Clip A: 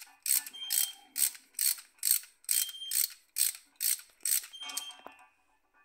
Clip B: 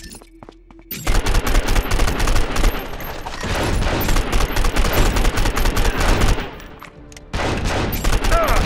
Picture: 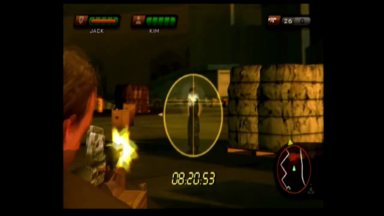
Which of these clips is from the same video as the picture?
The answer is B